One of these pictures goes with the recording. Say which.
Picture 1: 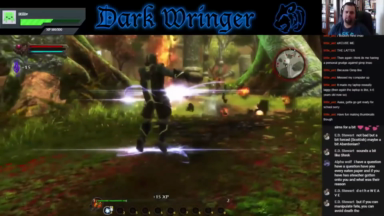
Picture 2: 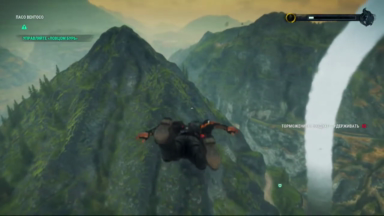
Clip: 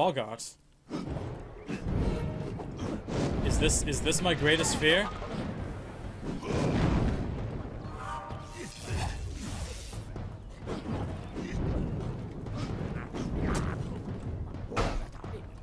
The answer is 1